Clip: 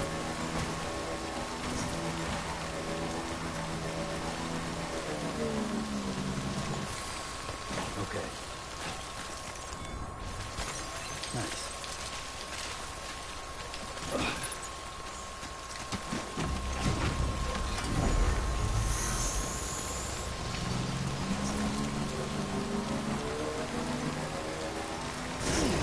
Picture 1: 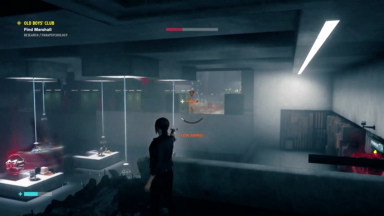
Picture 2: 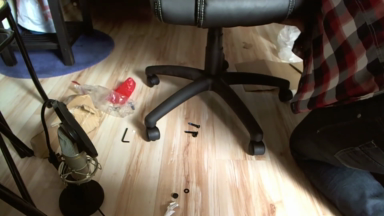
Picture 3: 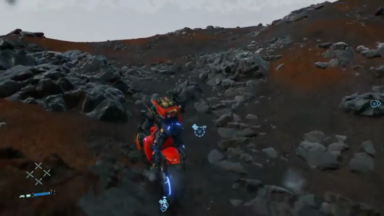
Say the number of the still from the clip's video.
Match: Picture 3